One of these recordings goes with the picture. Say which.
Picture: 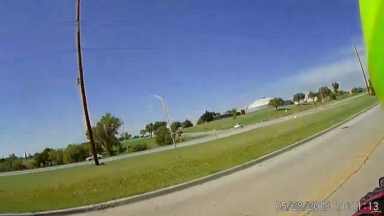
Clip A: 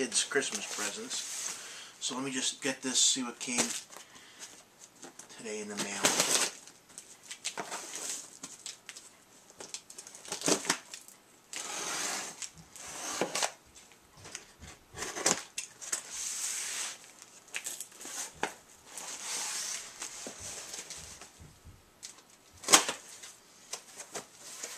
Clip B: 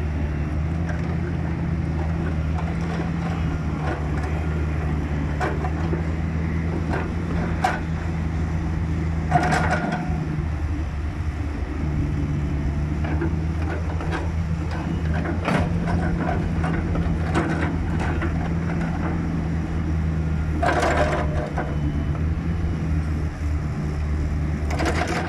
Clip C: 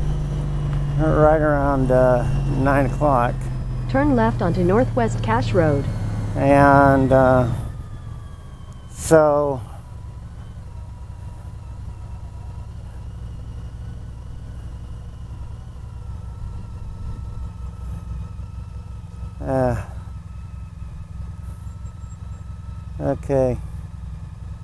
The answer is C